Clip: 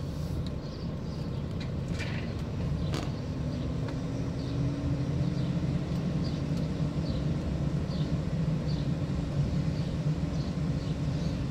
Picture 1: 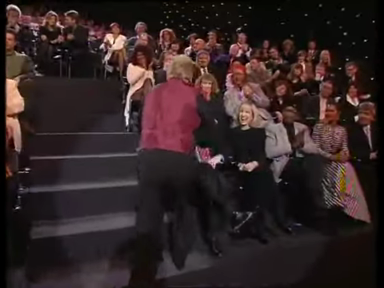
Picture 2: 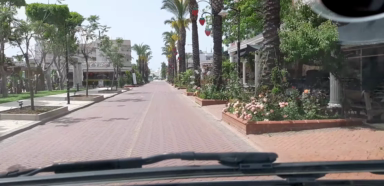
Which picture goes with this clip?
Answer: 2